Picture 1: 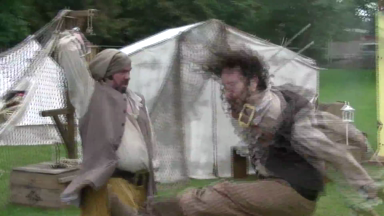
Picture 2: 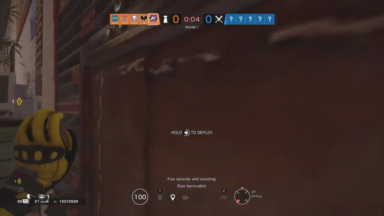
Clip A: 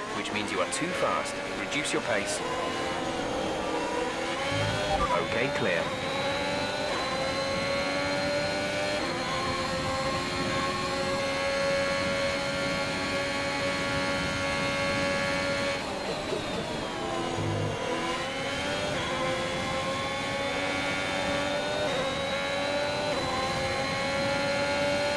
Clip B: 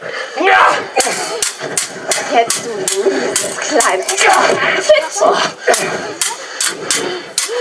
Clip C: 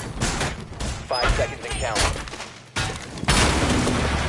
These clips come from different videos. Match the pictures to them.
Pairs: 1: B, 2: C